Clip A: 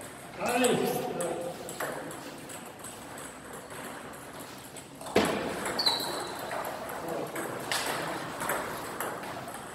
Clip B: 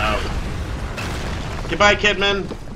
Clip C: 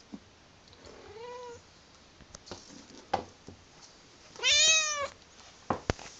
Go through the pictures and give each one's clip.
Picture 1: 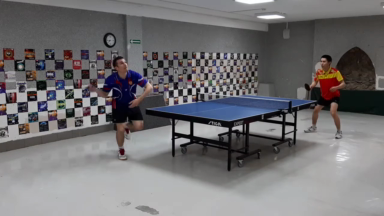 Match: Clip A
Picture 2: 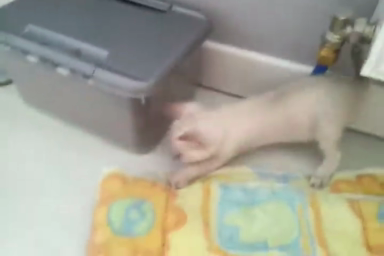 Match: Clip C